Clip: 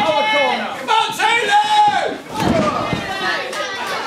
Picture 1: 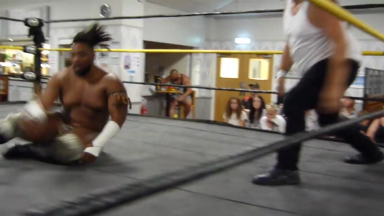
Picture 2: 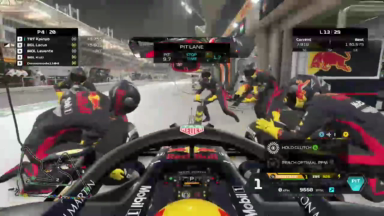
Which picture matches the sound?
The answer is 1